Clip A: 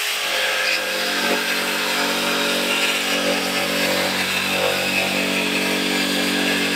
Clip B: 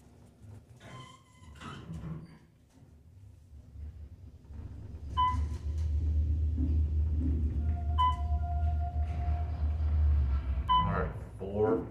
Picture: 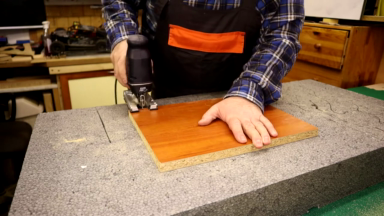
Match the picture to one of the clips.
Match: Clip A